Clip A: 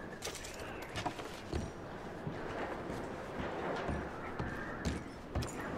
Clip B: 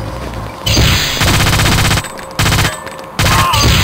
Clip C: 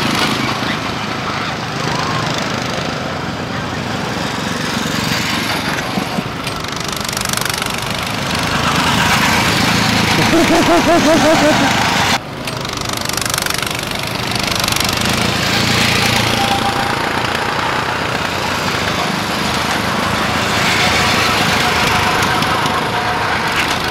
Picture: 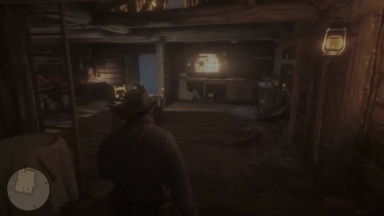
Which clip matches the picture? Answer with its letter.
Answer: A